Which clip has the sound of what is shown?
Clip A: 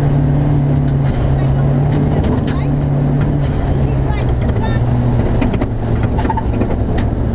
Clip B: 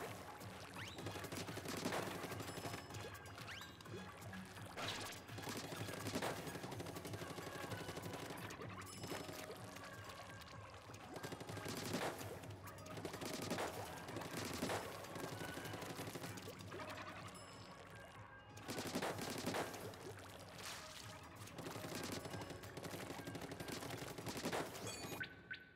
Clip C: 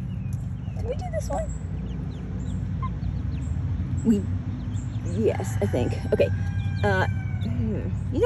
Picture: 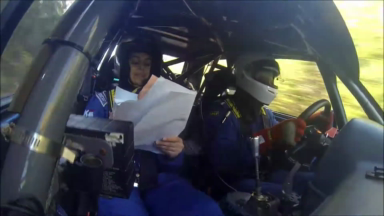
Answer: A